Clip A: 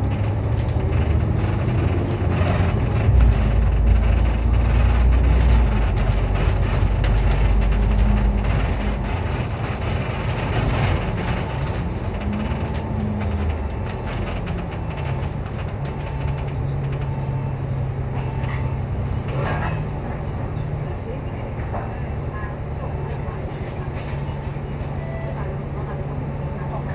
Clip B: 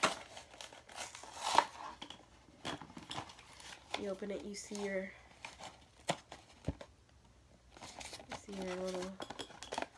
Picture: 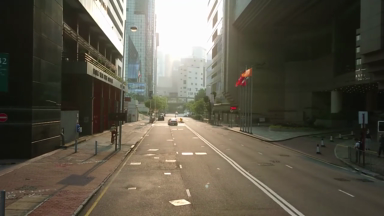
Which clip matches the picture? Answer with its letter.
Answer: A